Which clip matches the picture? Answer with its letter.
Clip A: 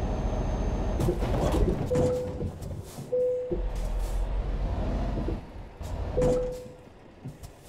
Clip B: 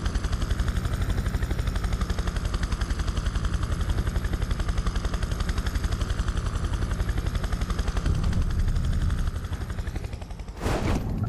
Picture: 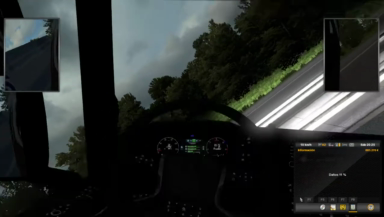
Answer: A